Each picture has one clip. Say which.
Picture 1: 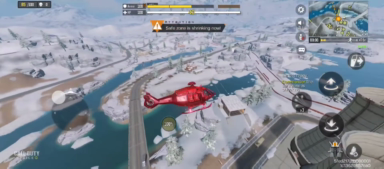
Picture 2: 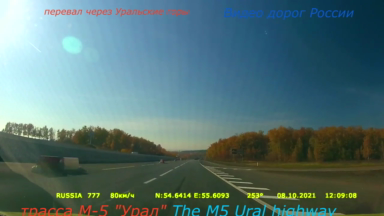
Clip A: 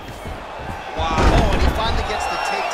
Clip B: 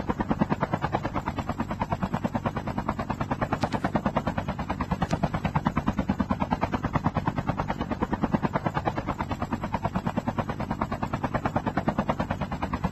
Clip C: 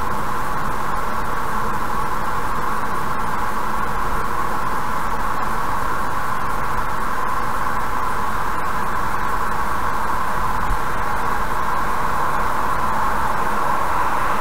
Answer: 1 B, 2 C